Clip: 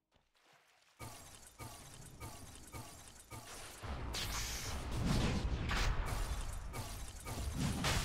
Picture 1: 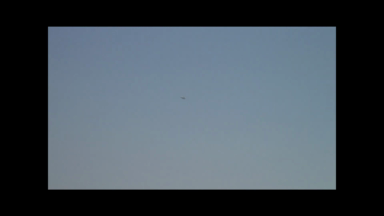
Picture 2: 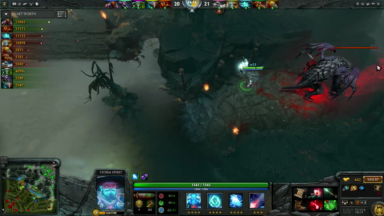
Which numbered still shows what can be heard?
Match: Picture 2